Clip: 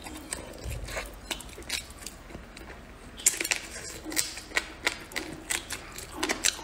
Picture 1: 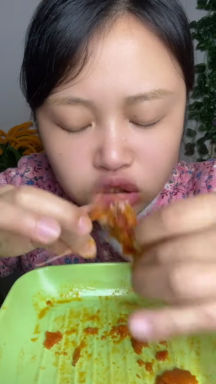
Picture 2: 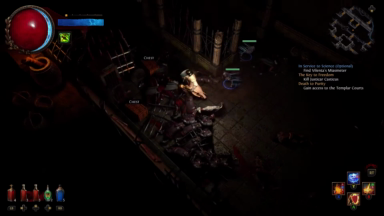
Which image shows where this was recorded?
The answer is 1